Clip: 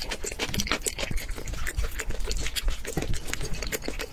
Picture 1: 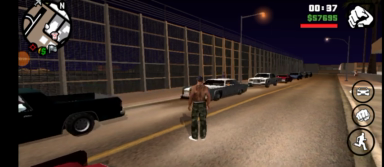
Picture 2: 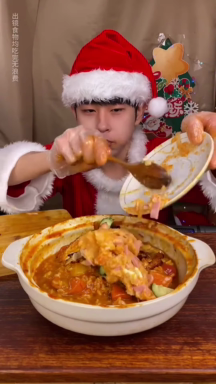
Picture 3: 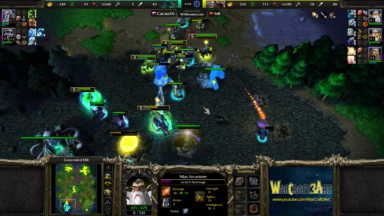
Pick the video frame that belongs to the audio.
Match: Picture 2